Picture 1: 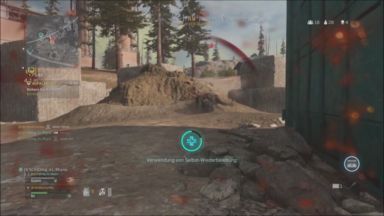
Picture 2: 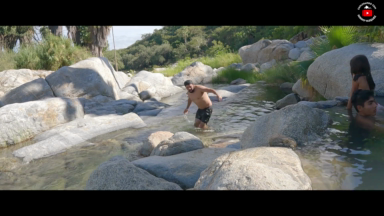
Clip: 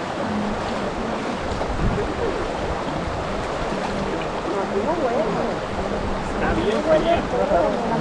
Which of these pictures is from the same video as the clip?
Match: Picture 2